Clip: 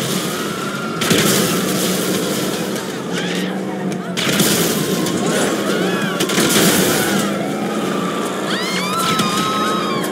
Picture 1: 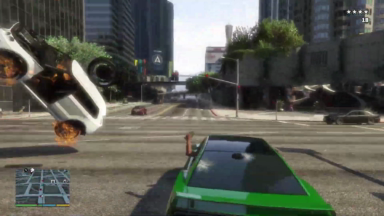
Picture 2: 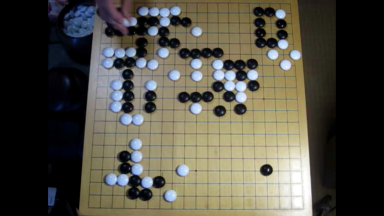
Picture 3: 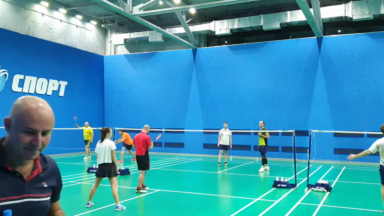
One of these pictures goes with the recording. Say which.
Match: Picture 1